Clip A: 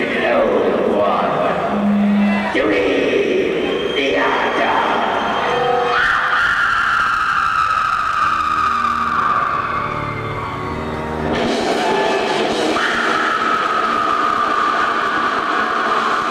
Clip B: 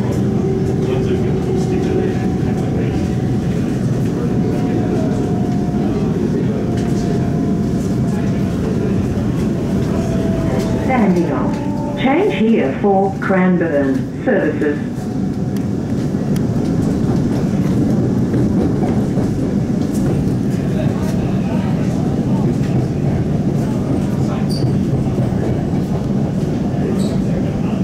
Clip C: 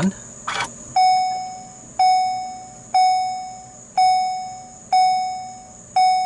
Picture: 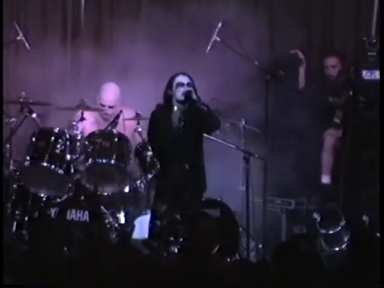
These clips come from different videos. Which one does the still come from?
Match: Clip A